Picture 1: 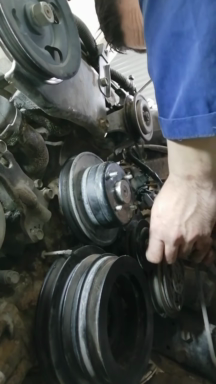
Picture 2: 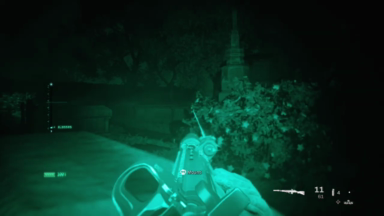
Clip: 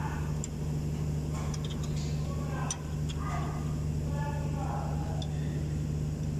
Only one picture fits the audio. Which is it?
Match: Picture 1